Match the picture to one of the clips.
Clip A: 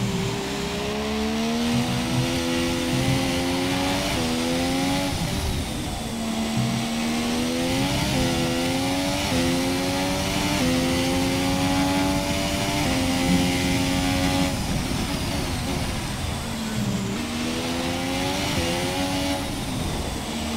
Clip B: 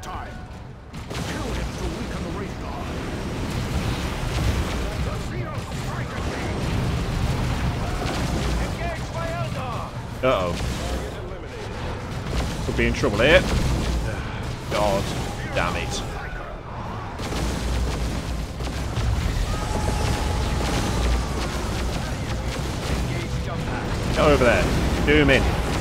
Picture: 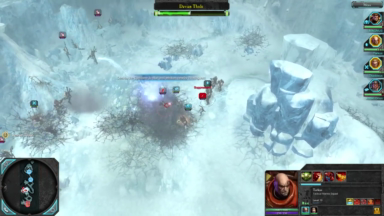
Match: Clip B